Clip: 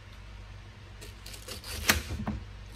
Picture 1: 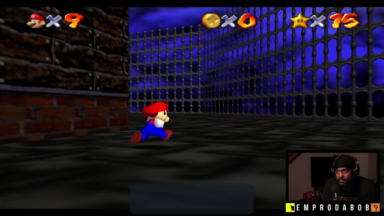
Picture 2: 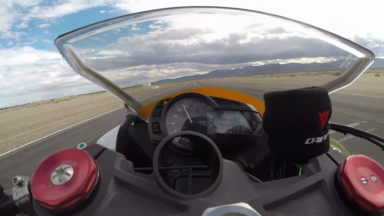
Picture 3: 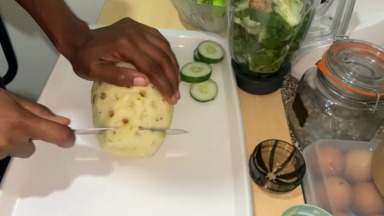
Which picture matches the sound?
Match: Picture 3